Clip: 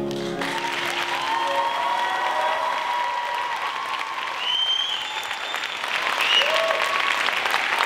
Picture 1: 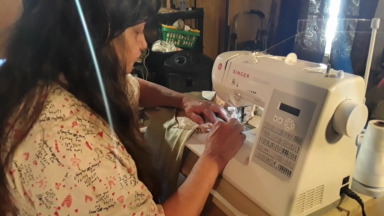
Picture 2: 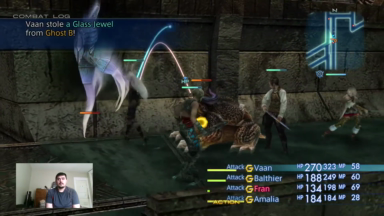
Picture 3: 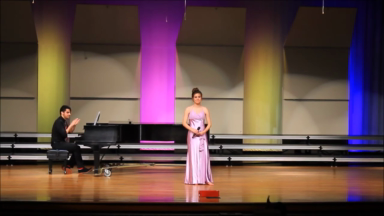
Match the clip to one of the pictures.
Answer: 3